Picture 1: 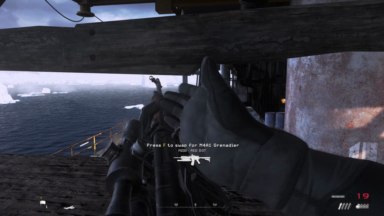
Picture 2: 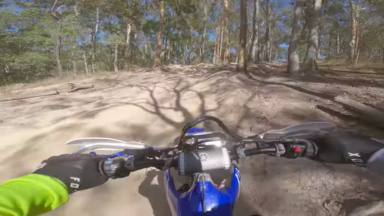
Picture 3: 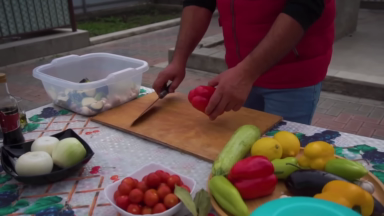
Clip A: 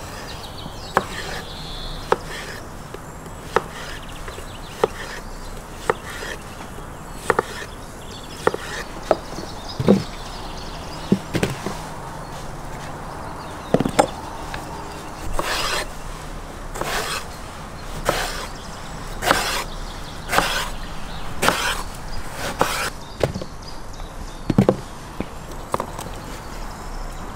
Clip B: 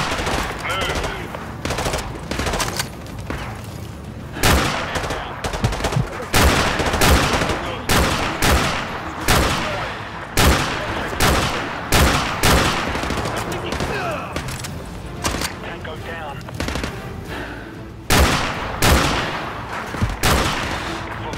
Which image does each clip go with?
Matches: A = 3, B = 1